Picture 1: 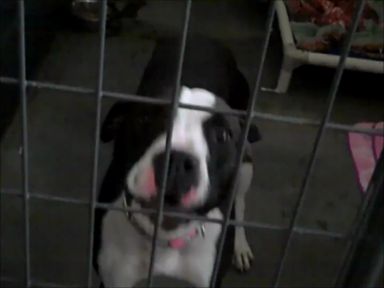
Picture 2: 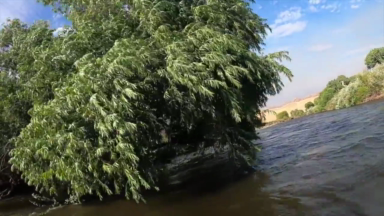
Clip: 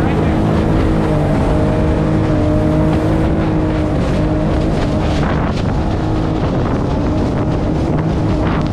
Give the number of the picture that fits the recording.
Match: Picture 2